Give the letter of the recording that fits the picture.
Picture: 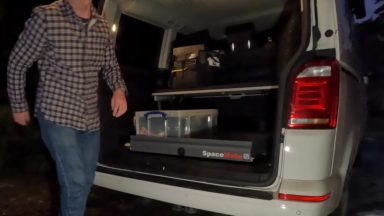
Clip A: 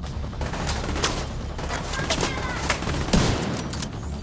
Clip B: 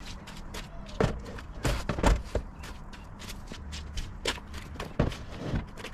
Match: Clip B